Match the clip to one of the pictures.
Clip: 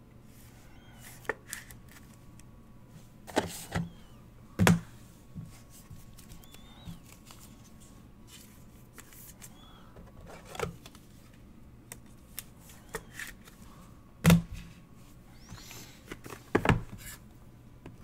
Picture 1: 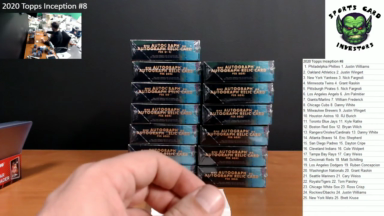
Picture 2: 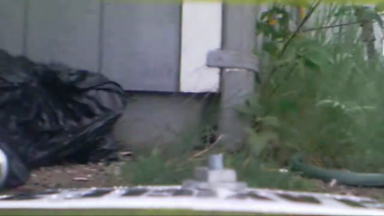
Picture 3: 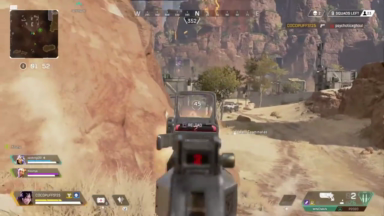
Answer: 1